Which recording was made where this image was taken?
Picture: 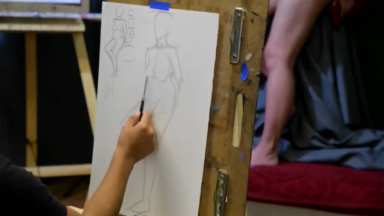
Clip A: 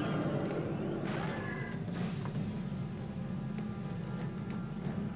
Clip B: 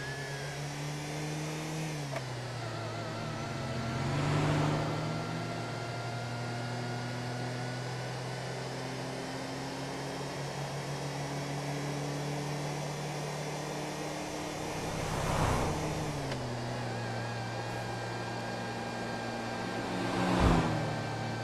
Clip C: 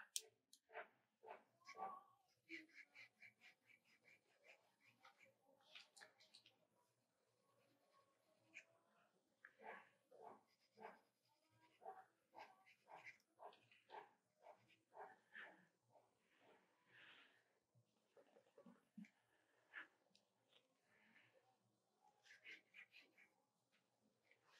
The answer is C